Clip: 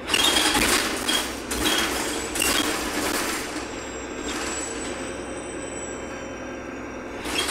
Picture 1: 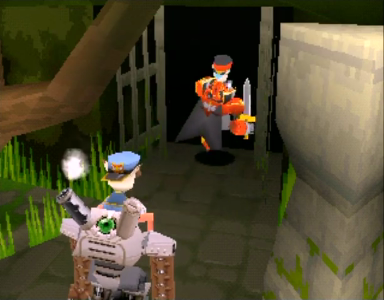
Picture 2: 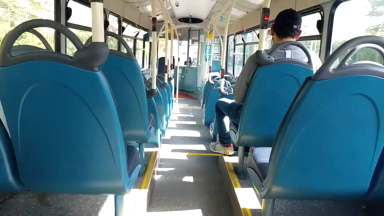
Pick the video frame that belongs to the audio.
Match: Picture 2